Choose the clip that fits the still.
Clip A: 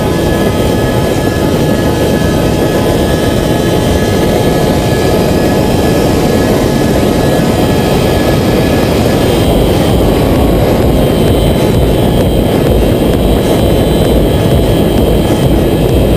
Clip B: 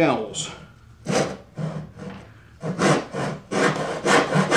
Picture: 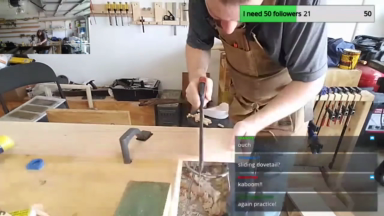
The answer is B